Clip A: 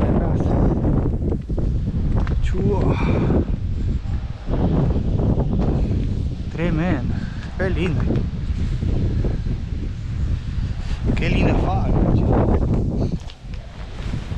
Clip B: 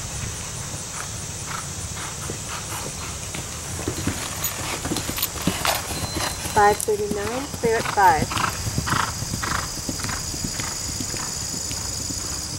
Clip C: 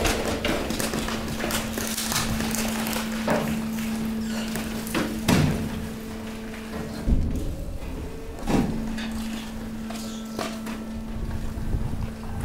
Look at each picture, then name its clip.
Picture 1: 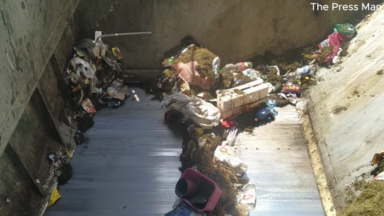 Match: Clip C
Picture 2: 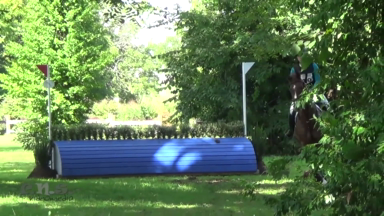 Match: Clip B